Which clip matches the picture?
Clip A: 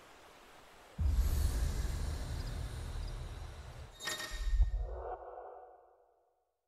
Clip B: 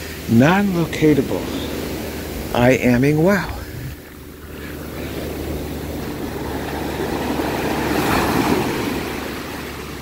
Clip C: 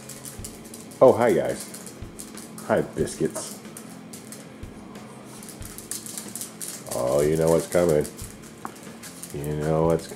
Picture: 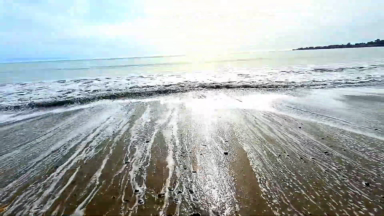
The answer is B